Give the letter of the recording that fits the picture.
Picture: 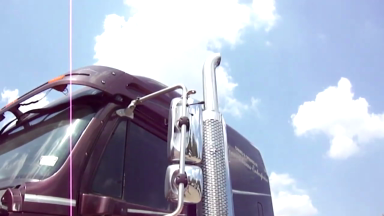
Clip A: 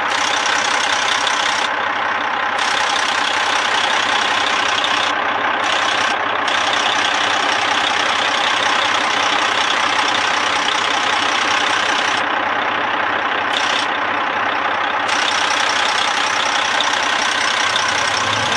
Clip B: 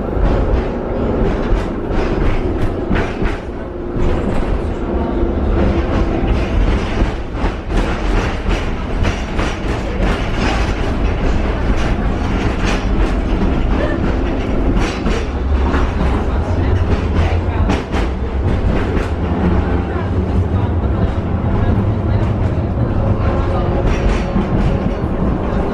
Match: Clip A